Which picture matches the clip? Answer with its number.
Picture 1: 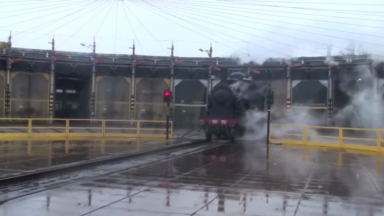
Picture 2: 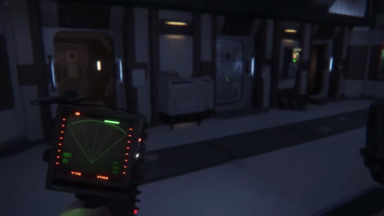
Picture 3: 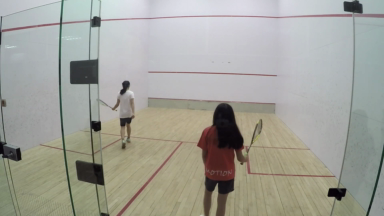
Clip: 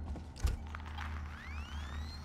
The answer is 2